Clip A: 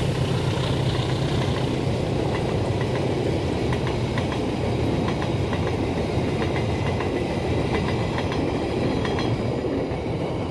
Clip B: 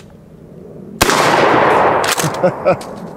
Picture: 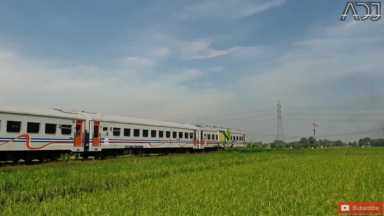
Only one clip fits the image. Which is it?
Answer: A